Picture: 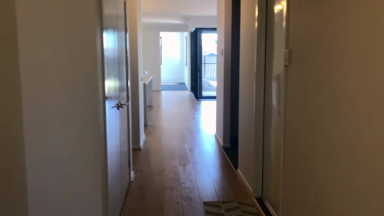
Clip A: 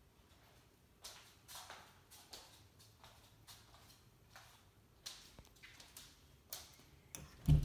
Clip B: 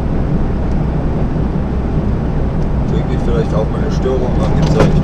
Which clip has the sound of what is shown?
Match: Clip A